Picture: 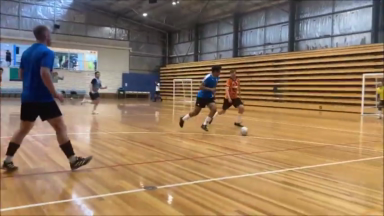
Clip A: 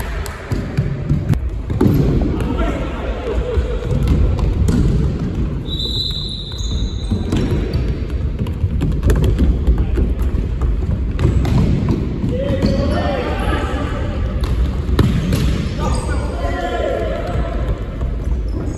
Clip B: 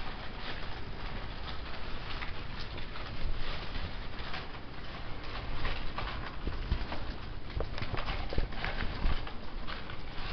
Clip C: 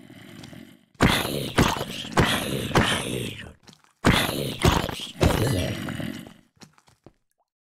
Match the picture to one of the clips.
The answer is A